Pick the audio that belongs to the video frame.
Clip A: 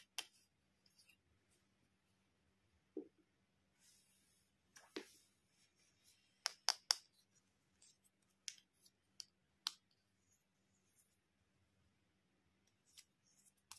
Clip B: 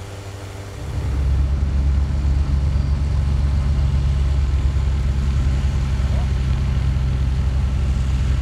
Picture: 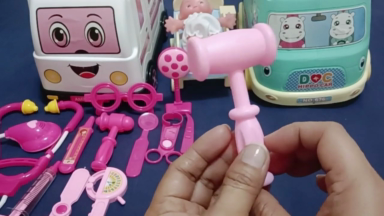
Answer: A